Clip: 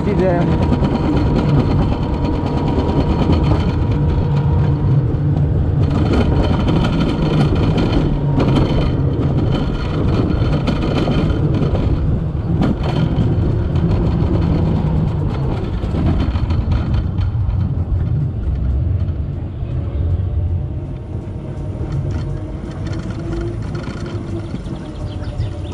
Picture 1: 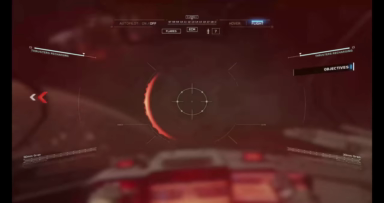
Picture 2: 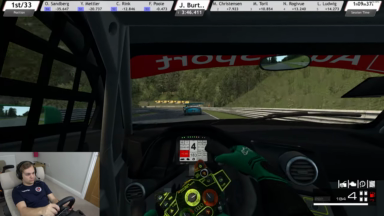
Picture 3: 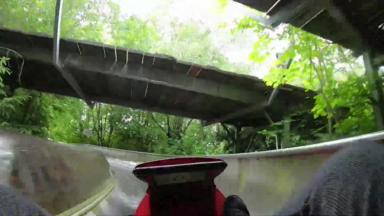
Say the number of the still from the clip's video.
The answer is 3